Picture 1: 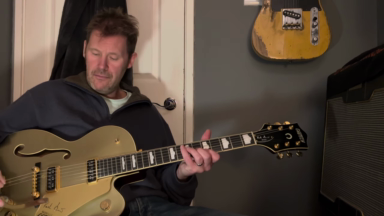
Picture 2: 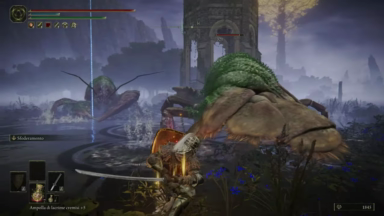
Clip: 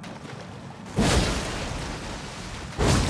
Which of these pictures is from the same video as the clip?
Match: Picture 2